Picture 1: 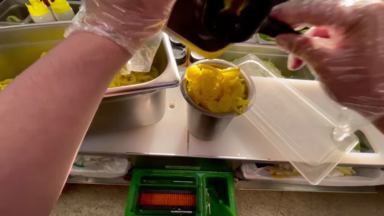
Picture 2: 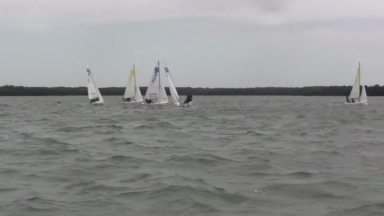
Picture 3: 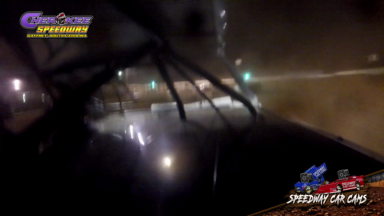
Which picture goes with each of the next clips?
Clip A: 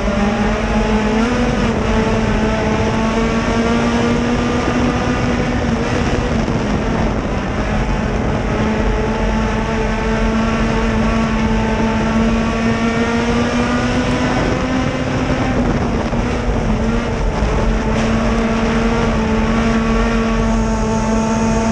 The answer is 3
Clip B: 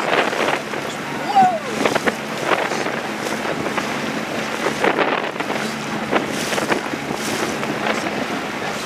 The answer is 2